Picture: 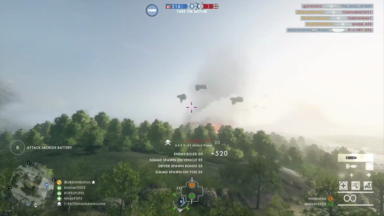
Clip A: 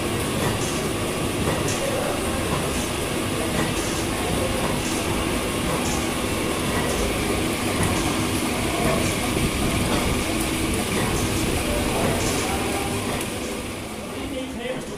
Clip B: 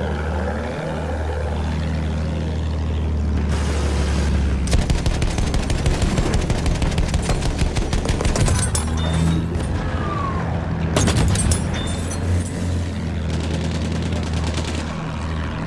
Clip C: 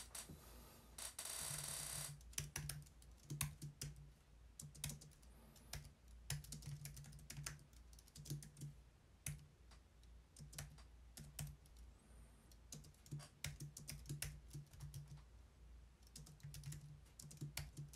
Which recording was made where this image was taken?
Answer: B